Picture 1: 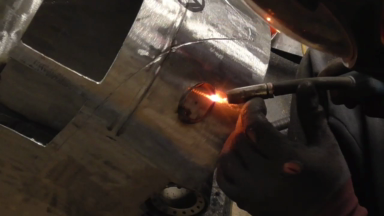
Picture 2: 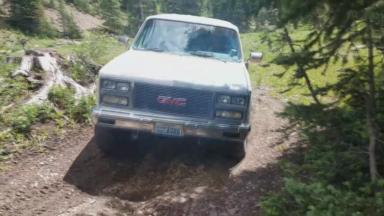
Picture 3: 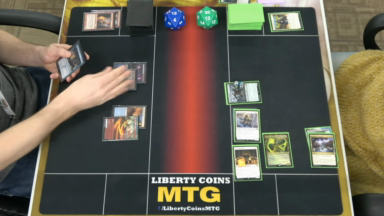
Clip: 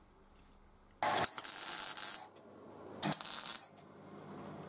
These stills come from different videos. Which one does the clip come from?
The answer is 1